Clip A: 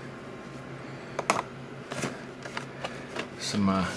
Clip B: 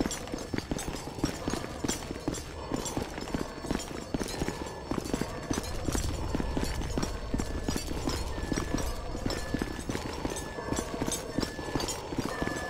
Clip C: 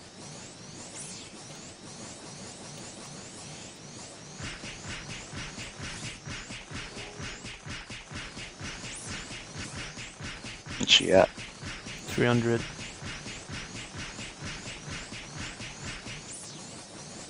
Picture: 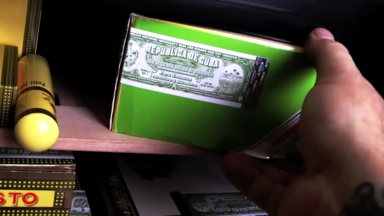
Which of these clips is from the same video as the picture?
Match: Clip A